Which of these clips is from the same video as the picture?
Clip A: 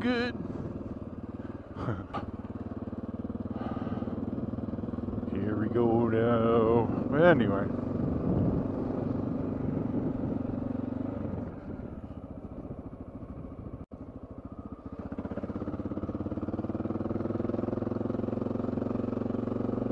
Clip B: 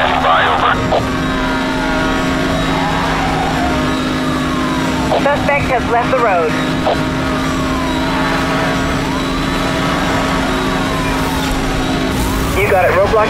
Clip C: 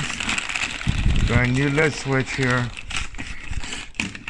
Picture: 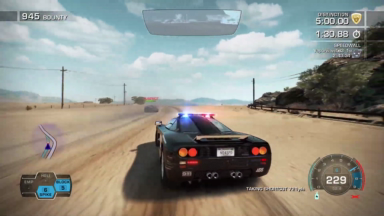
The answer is B